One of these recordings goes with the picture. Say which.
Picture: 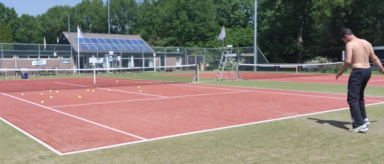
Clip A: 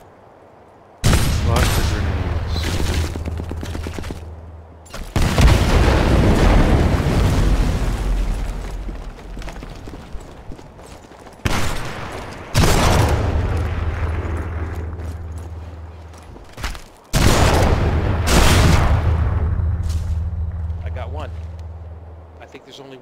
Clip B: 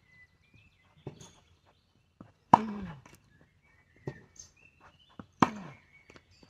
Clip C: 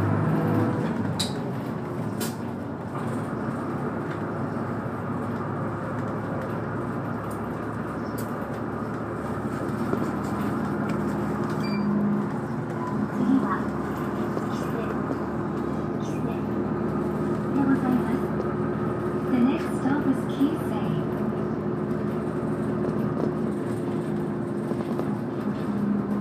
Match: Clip B